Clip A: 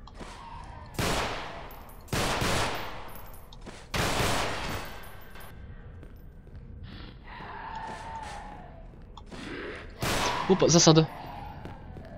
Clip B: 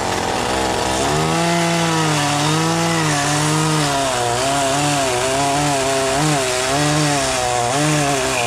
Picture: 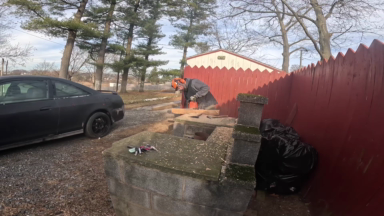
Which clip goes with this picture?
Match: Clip B